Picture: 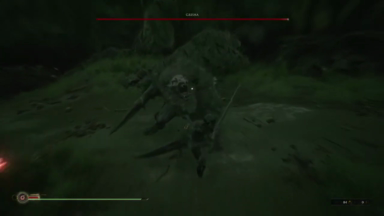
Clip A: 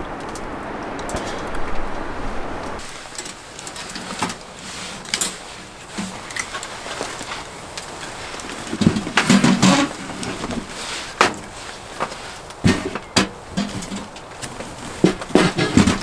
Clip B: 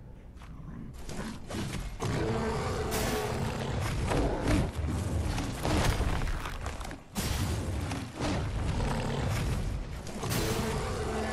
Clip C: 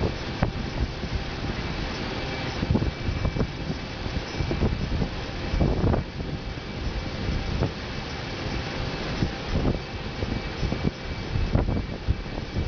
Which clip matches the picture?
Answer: B